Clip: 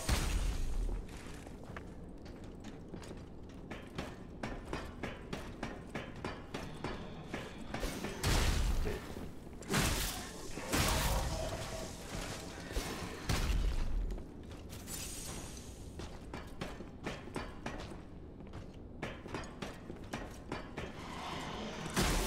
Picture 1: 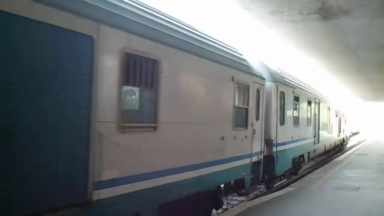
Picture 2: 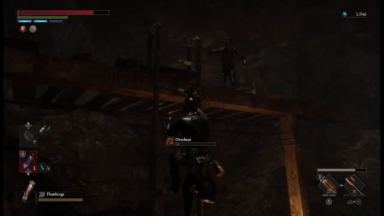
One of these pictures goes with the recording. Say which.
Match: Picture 2